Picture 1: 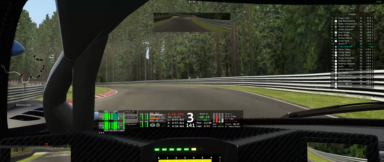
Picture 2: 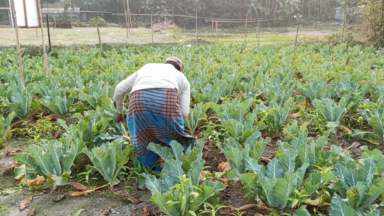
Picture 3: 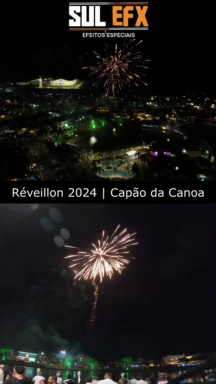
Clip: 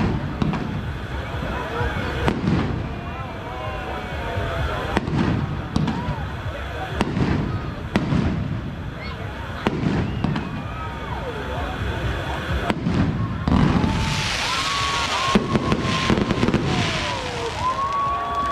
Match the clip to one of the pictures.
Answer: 3